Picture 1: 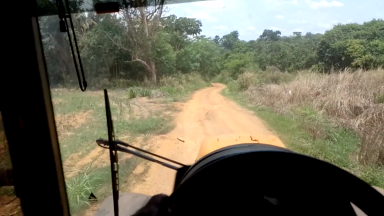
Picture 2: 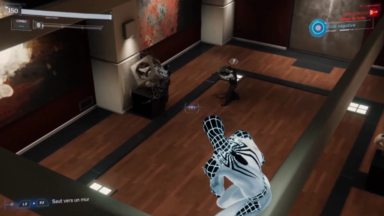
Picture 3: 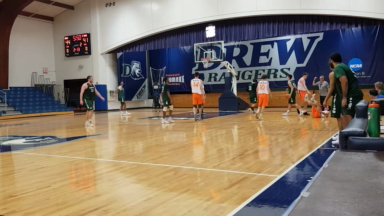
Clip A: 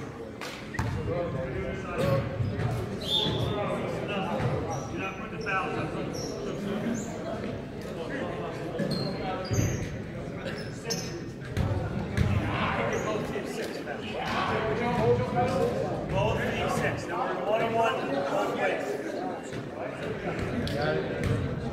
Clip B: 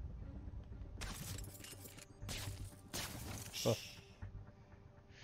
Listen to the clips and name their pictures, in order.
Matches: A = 3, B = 2